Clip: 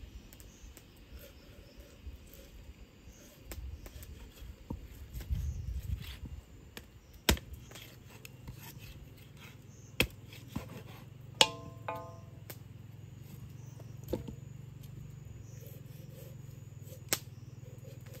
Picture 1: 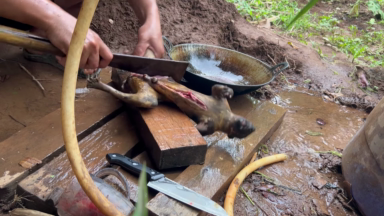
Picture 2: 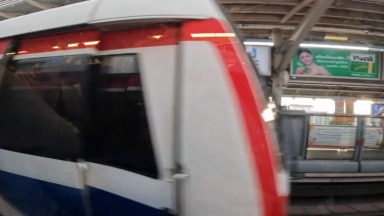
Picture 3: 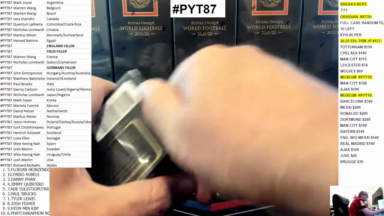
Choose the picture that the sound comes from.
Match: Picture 1